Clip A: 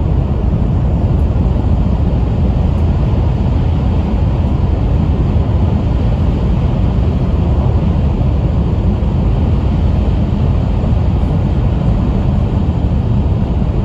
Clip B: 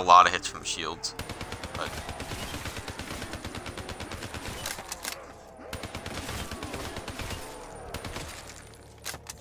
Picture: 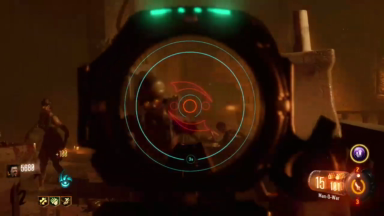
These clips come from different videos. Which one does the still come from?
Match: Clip B